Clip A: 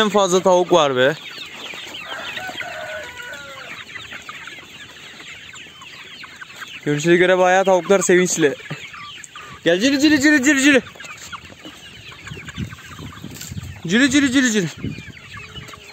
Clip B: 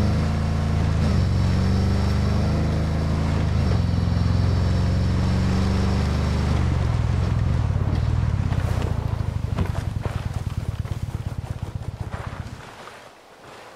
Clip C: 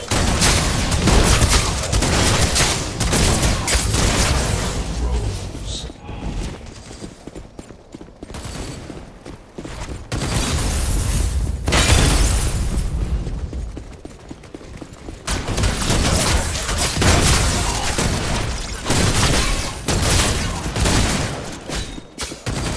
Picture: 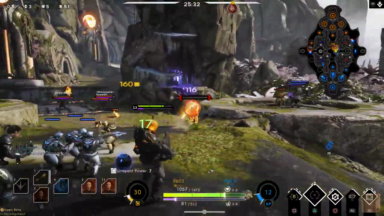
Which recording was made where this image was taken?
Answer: C